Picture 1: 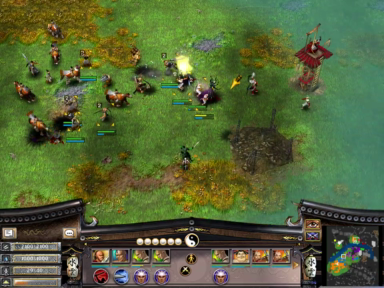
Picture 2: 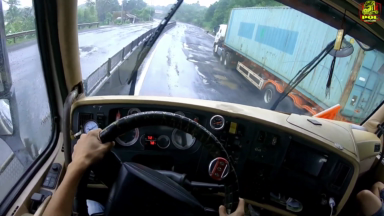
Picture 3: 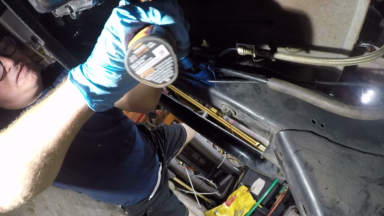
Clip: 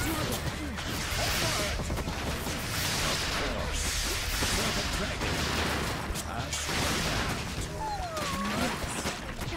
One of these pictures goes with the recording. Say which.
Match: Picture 1